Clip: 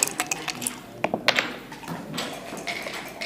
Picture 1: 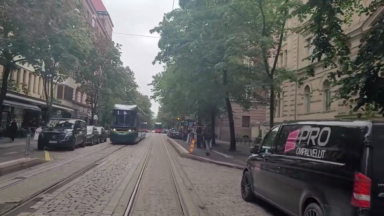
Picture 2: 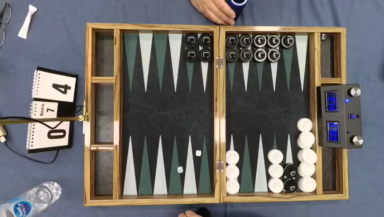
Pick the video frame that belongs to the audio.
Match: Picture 2